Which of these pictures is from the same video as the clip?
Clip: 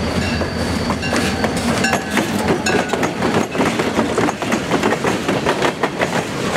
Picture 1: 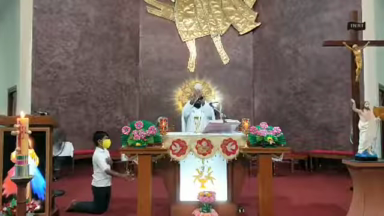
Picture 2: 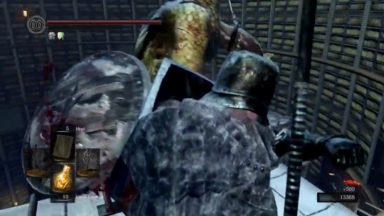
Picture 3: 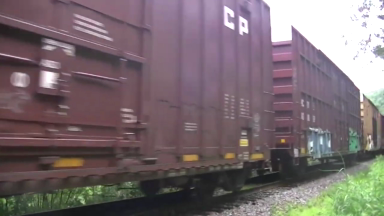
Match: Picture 3